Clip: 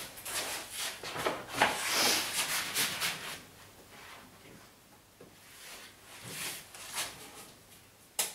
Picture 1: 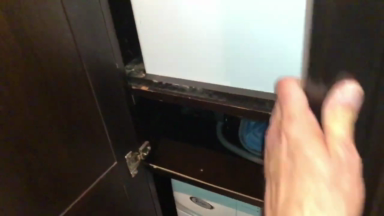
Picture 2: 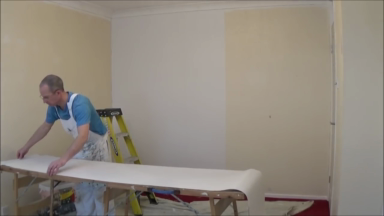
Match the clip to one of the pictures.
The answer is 2